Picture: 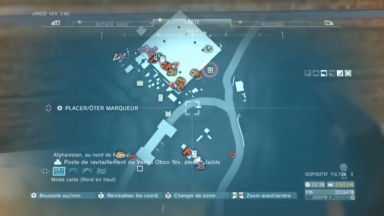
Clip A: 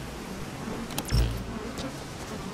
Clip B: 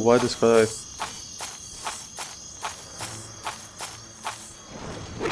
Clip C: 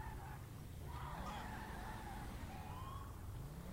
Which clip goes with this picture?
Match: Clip A